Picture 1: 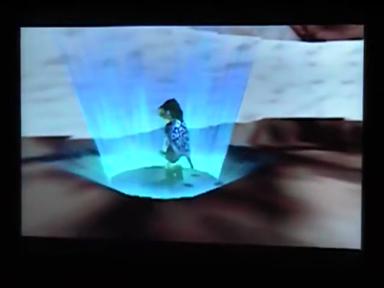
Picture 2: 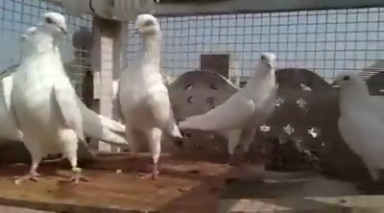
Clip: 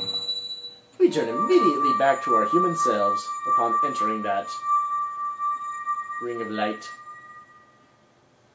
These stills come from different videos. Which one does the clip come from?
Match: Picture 1